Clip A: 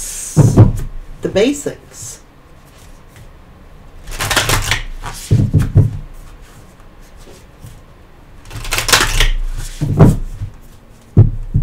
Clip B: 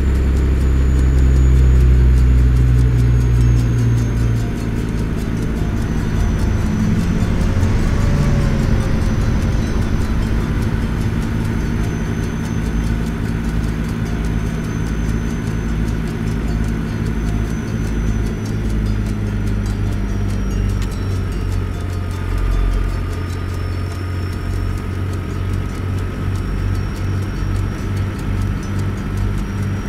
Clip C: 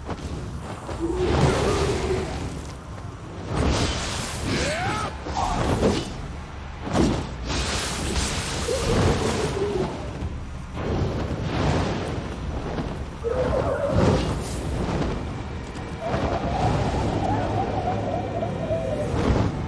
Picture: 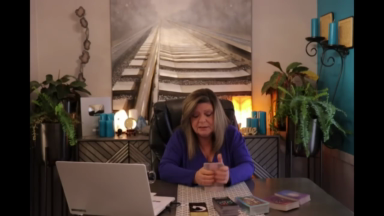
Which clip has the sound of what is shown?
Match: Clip A